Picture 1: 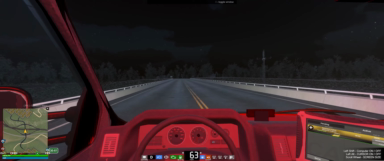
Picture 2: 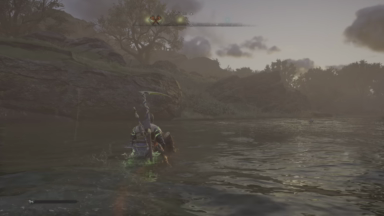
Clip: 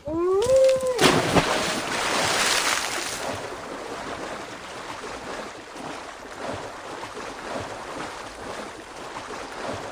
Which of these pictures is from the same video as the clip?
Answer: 2